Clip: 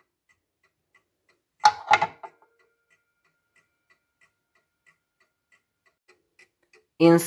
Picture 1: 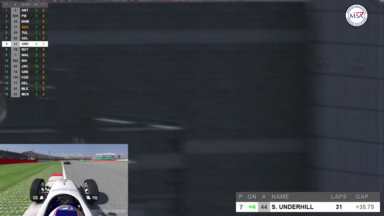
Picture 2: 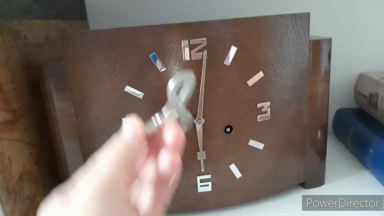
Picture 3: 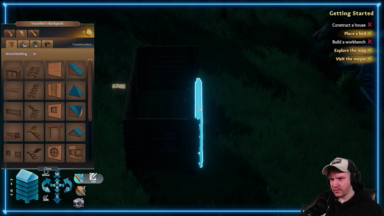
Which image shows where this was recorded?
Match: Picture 2